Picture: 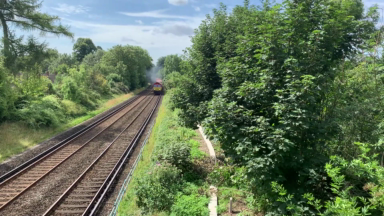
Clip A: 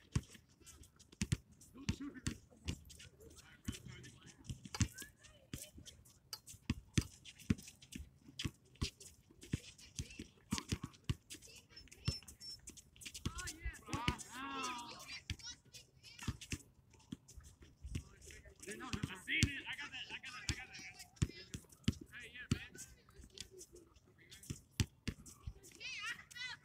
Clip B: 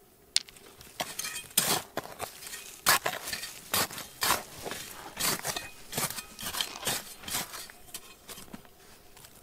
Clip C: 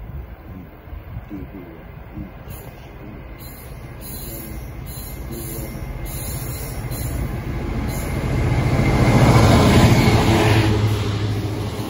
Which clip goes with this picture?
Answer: C